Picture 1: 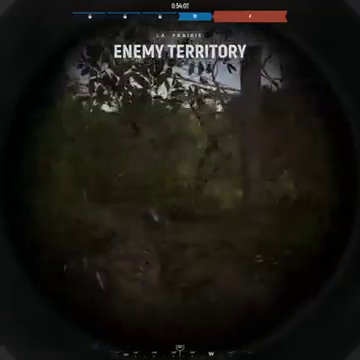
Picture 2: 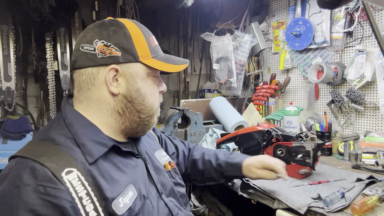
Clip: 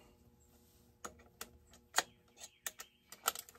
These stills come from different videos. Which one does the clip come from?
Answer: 2